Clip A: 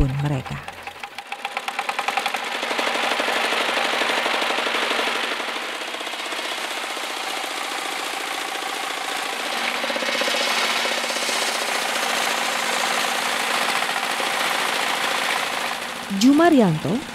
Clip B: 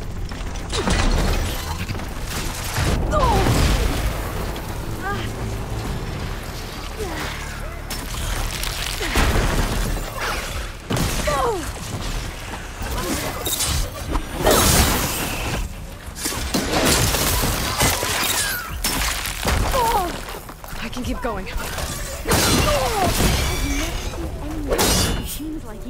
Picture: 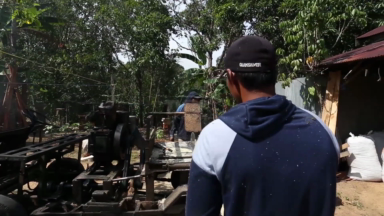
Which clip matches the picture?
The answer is A